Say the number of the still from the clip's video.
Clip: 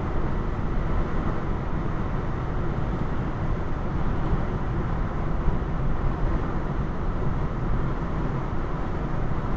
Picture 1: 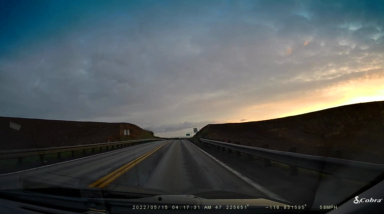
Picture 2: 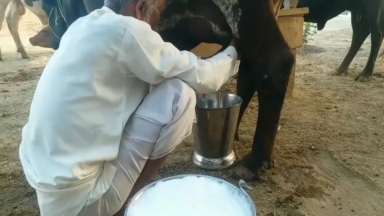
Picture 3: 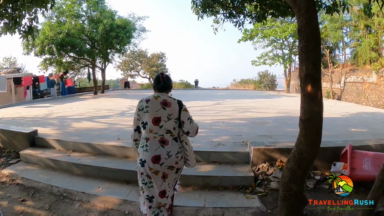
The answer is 1